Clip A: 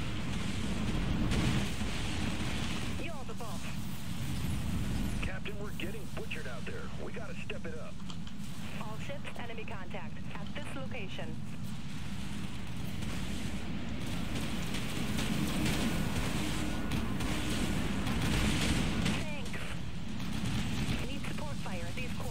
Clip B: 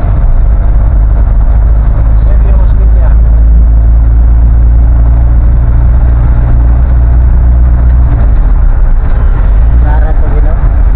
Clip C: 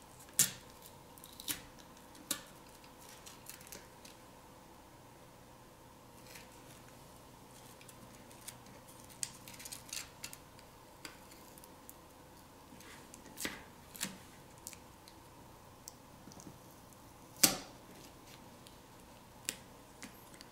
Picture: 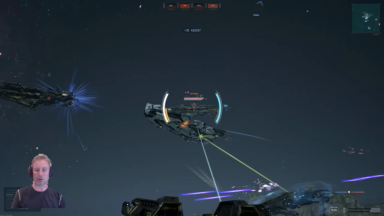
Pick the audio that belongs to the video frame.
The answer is A